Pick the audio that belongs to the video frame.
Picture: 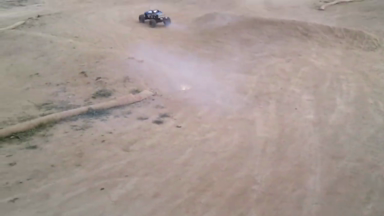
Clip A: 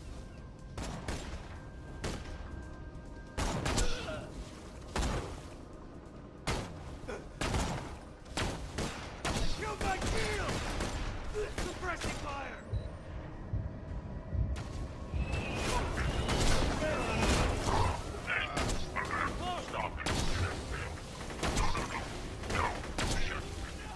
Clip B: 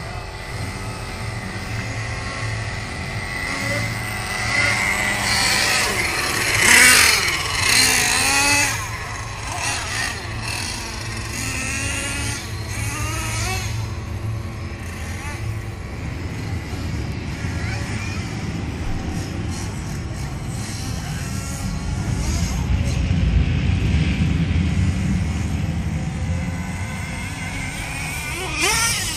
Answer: B